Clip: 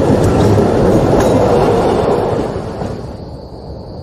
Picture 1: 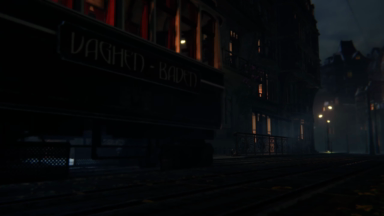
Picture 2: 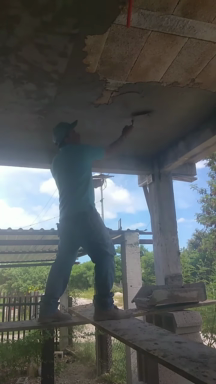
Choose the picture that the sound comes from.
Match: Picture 1